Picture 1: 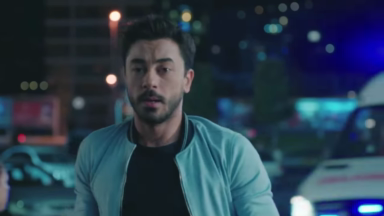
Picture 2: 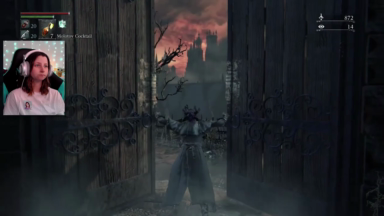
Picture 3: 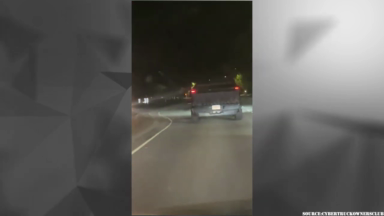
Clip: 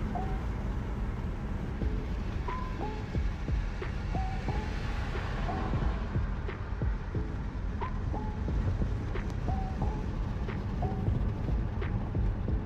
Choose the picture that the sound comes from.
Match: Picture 3